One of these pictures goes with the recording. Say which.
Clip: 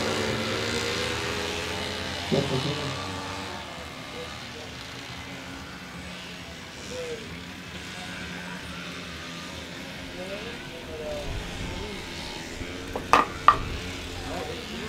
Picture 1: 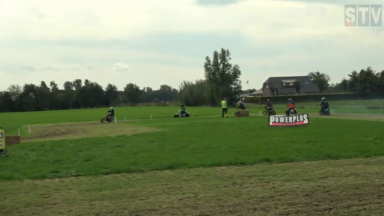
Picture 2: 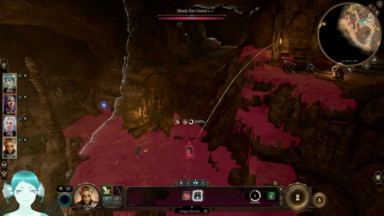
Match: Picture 1